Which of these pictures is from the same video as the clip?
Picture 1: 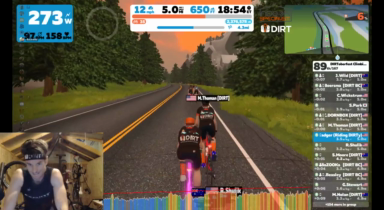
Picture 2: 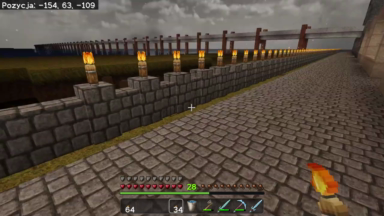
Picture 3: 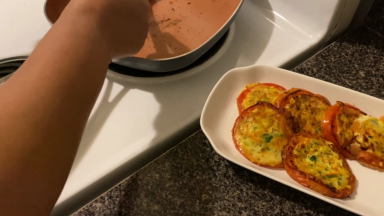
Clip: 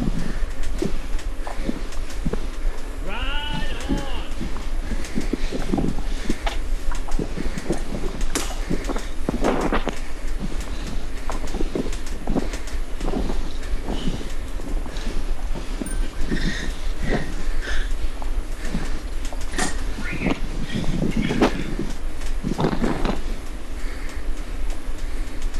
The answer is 1